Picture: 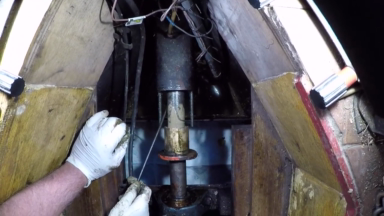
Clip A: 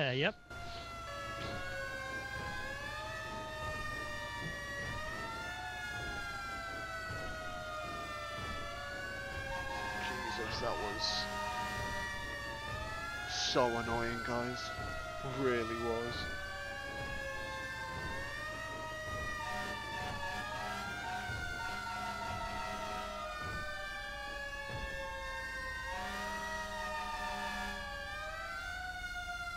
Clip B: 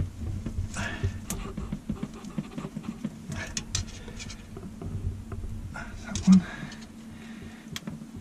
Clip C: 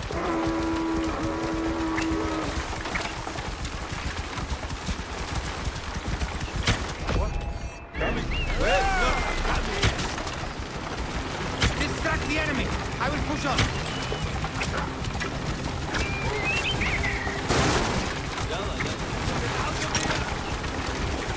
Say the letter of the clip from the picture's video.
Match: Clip B